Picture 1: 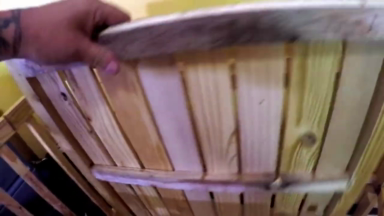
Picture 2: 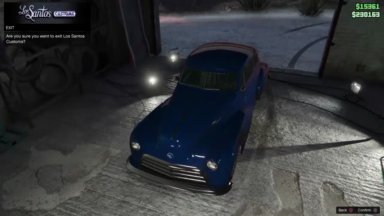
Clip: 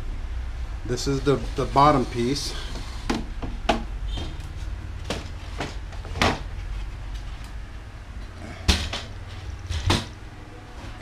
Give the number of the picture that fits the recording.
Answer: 1